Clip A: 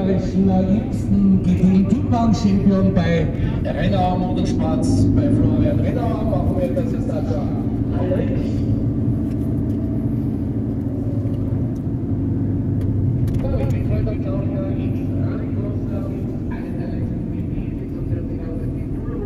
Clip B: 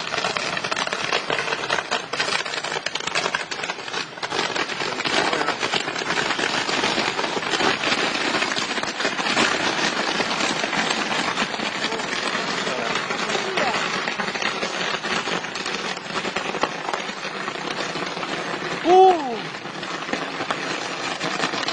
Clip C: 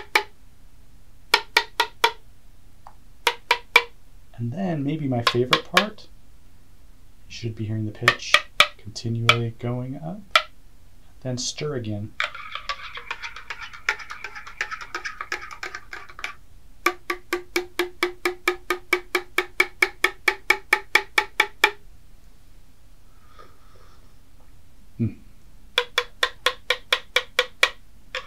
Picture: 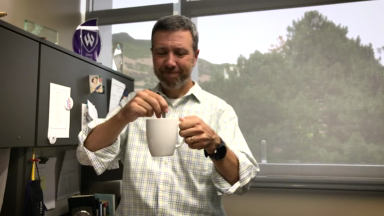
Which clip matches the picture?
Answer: C